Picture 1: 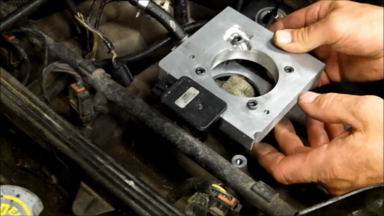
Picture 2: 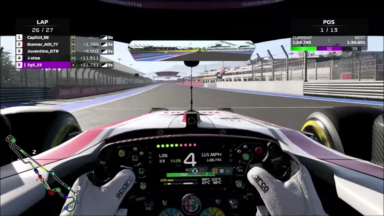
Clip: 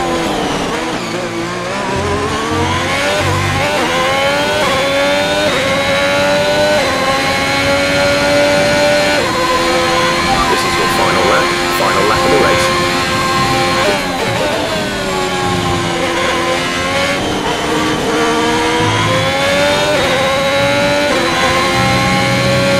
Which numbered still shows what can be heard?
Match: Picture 2